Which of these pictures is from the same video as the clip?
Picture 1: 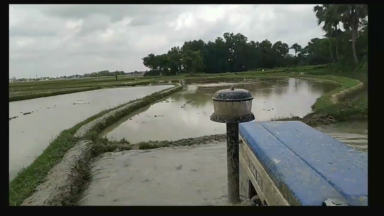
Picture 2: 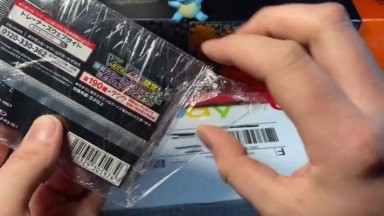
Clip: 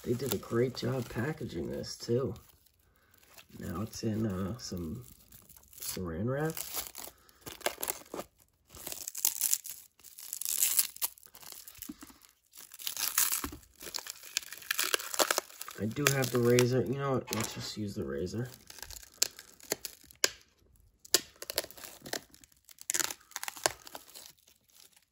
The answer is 2